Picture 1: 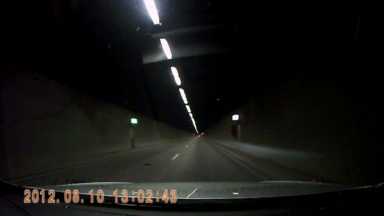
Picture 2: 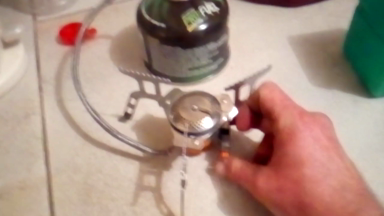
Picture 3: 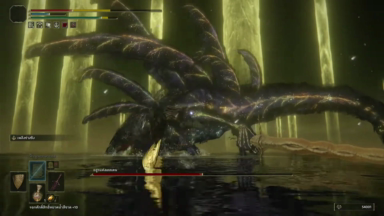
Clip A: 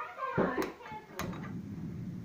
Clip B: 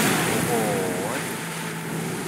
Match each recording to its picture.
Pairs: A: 2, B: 3